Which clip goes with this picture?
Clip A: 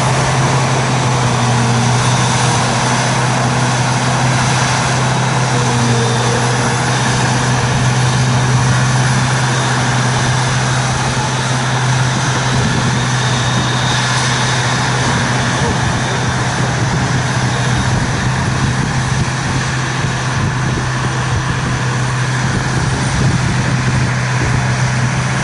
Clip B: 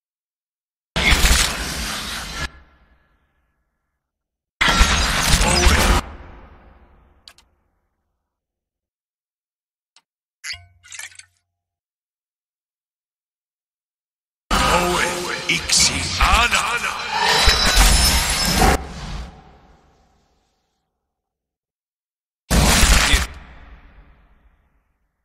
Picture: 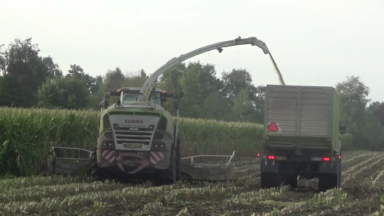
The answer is A